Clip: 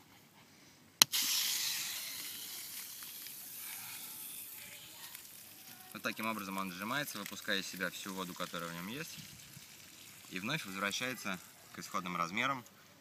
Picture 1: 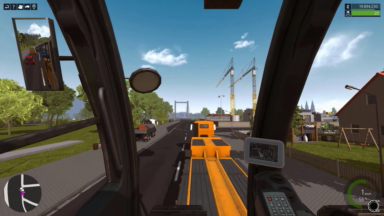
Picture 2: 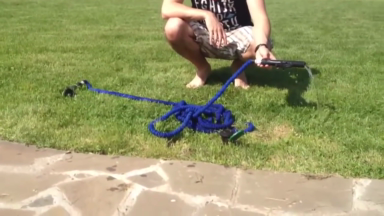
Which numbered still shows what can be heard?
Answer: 2